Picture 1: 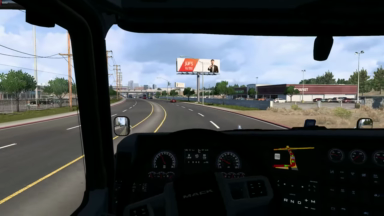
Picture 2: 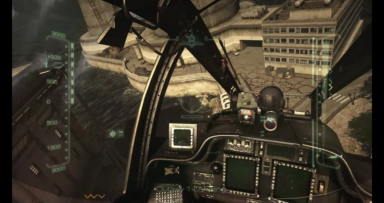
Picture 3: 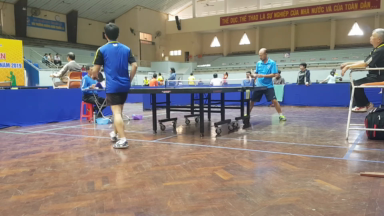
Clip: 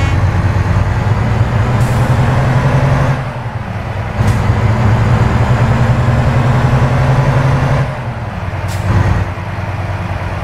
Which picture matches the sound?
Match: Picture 1